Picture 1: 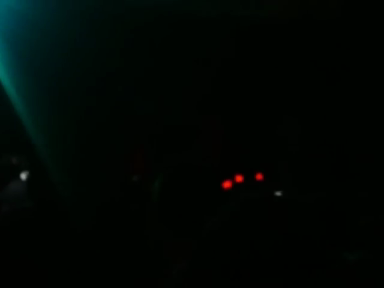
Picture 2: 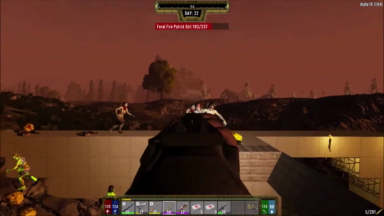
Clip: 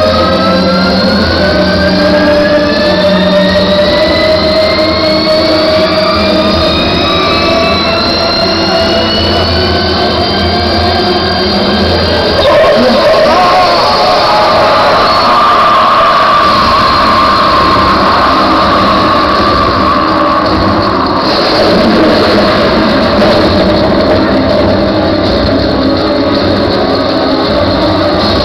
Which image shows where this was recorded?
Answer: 1